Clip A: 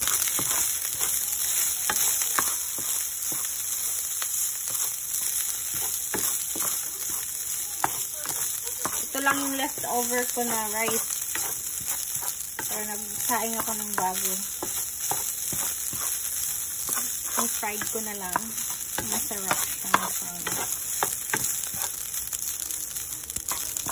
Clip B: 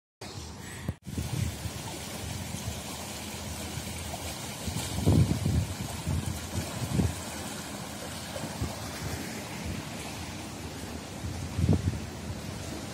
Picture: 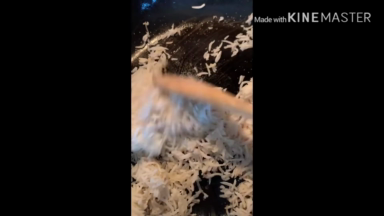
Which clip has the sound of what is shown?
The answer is A